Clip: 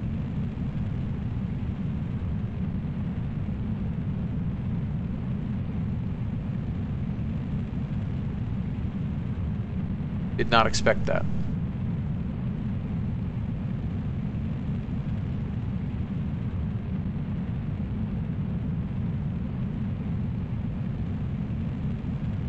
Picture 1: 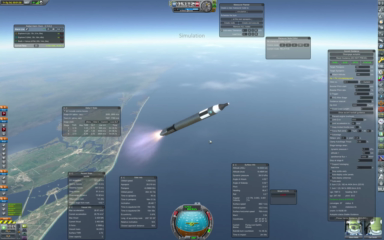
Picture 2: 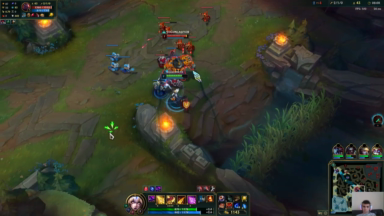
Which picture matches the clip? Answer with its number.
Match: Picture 1